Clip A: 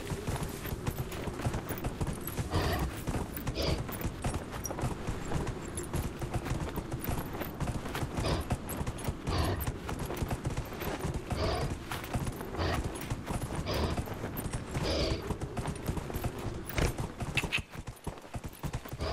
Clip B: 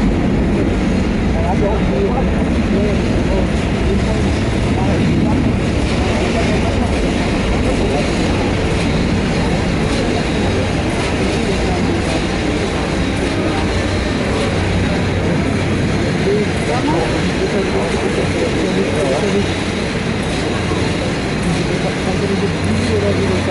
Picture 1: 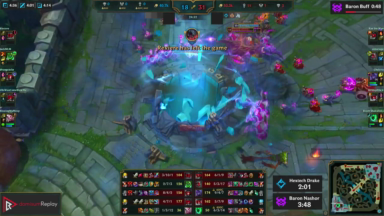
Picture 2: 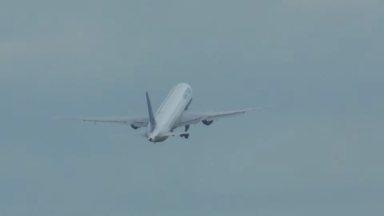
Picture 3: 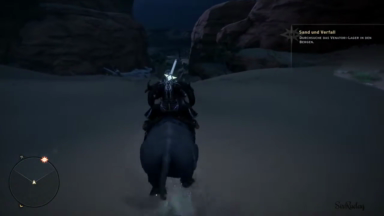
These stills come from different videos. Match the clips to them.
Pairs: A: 3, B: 2